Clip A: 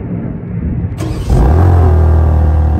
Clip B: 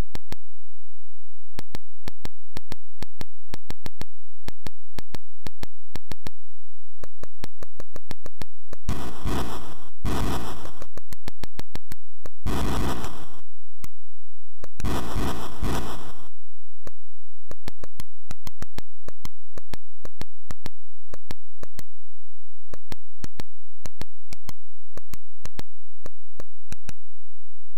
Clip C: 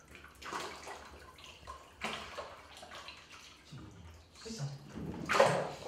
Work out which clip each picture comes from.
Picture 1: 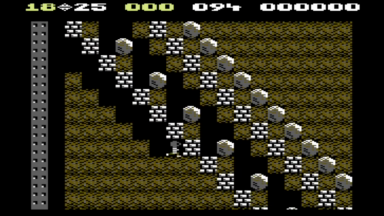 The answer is B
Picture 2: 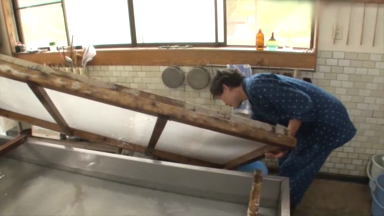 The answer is C